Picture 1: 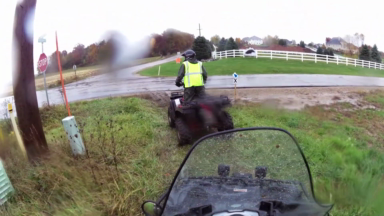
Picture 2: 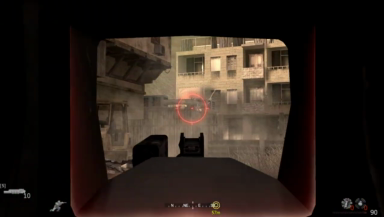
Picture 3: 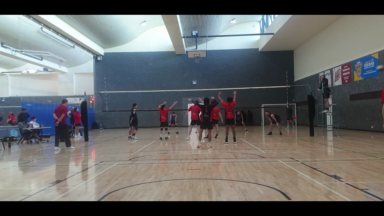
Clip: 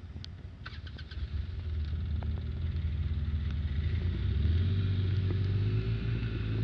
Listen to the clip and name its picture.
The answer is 1